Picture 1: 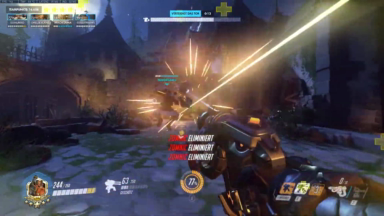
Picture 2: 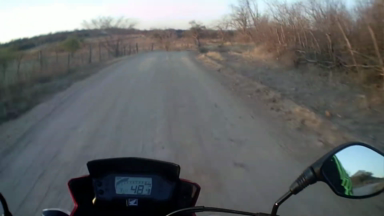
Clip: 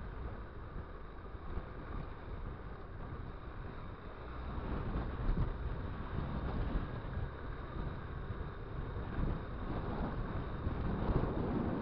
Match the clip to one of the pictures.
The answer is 2